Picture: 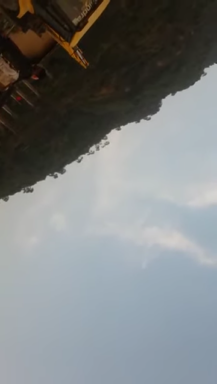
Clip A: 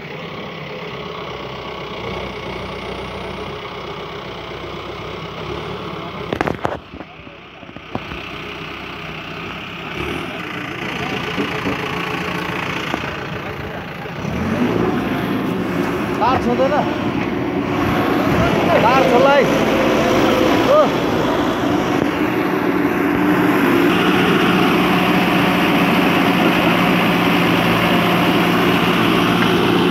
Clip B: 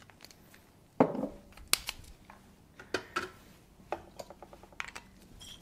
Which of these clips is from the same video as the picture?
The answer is A